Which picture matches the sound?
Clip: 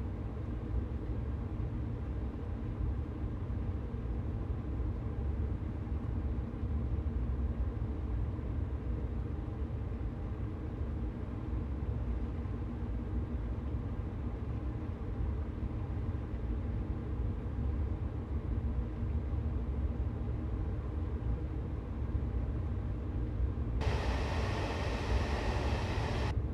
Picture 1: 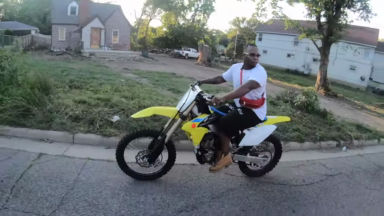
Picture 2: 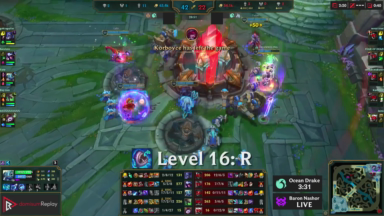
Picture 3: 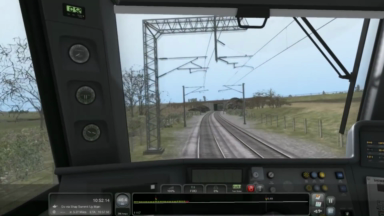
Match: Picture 3